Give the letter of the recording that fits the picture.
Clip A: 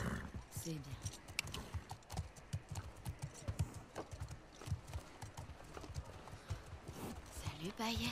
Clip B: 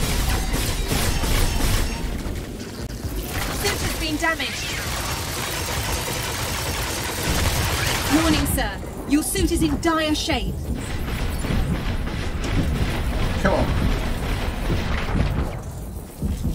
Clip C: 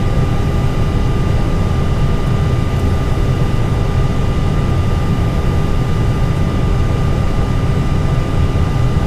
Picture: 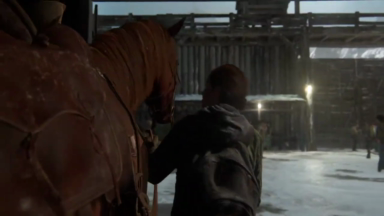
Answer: A